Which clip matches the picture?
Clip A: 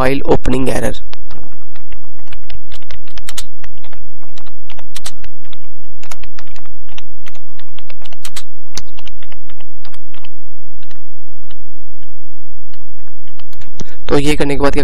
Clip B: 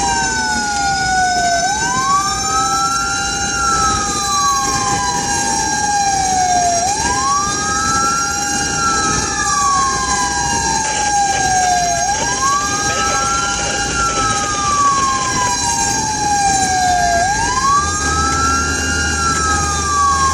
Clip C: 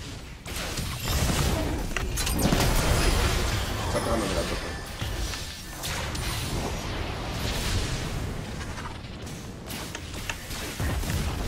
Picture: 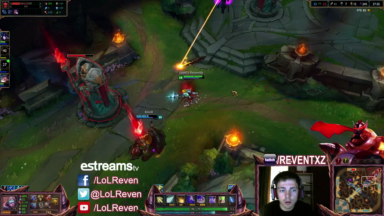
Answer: C